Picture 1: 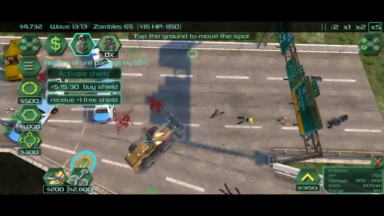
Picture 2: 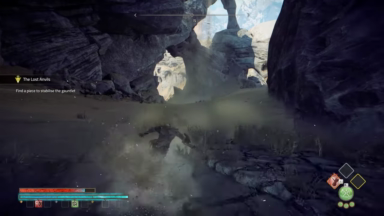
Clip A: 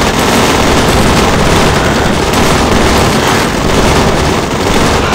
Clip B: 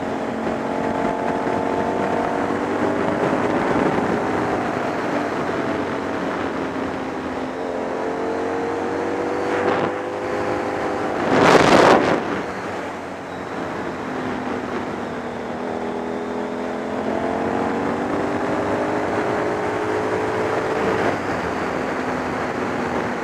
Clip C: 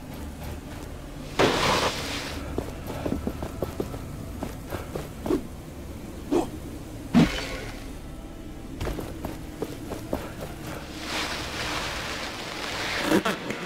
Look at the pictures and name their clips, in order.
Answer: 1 A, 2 C